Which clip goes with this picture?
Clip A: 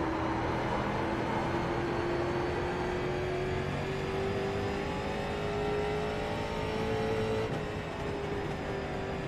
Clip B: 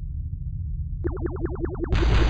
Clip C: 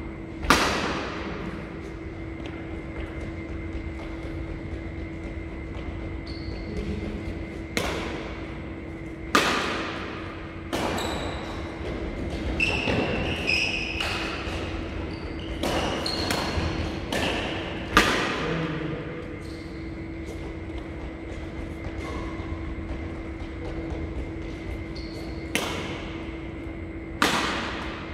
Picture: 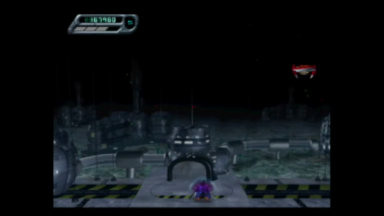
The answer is B